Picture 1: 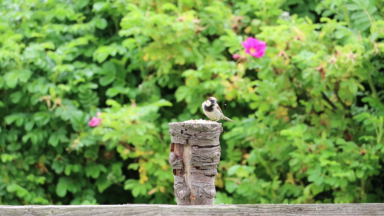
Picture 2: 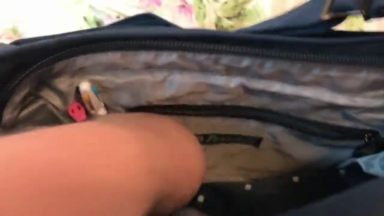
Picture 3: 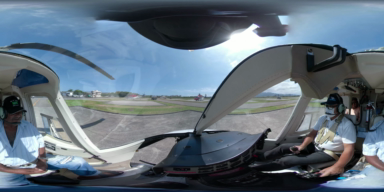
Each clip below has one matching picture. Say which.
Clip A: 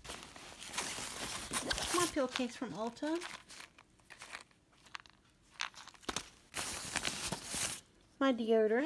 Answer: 2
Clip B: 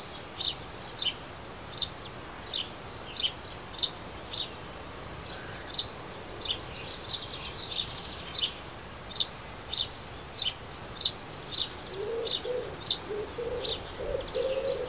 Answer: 1